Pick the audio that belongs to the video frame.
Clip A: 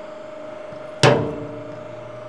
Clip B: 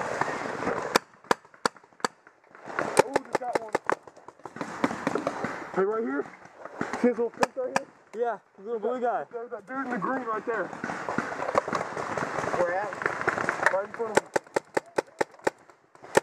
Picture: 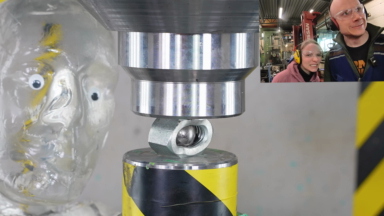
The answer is A